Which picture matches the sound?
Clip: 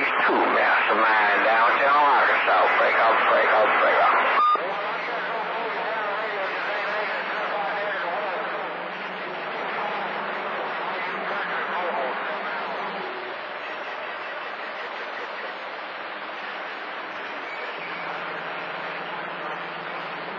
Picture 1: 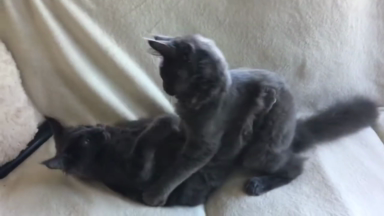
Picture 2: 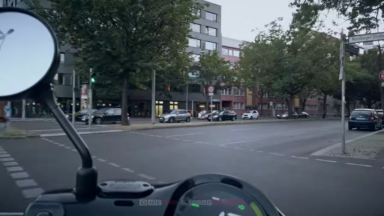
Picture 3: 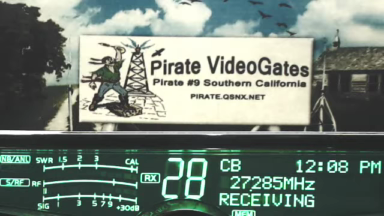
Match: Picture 3